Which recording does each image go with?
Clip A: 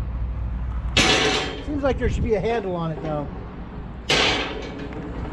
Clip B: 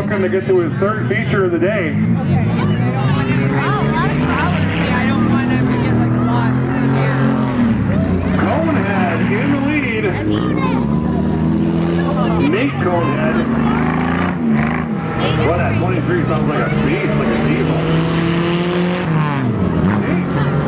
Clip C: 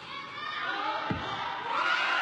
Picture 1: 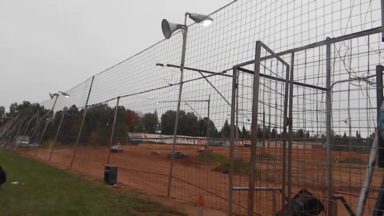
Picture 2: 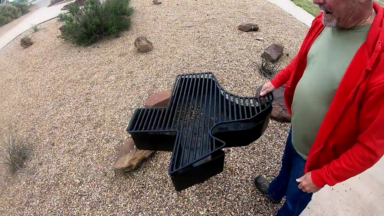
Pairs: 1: B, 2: A